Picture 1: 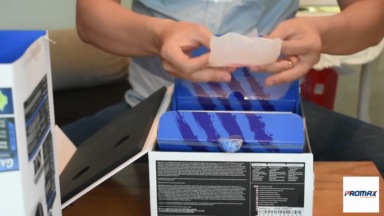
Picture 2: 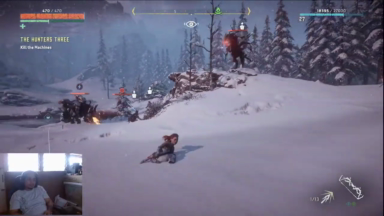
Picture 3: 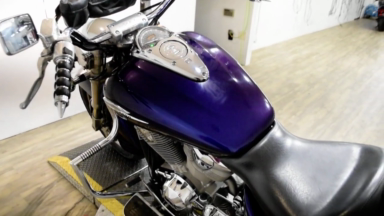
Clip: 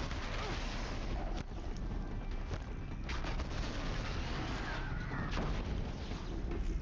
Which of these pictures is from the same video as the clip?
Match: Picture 2